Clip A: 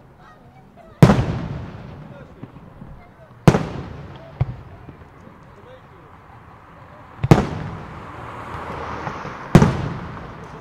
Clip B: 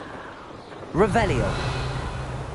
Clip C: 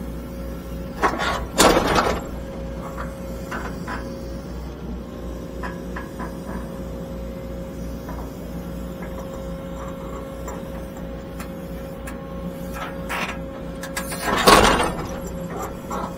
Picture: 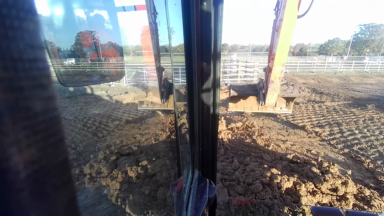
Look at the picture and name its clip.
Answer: C